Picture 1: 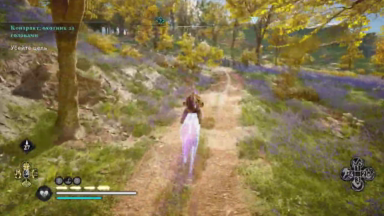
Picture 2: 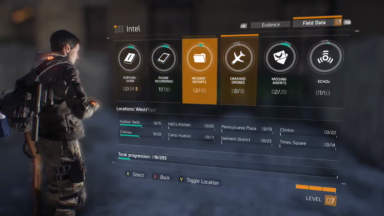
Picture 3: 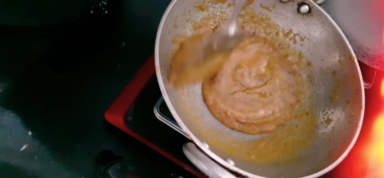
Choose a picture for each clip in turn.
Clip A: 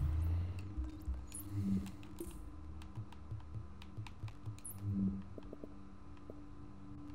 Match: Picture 2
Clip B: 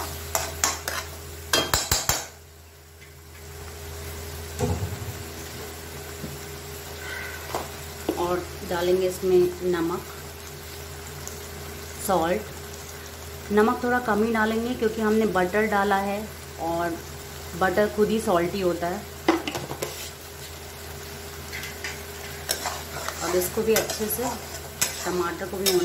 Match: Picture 3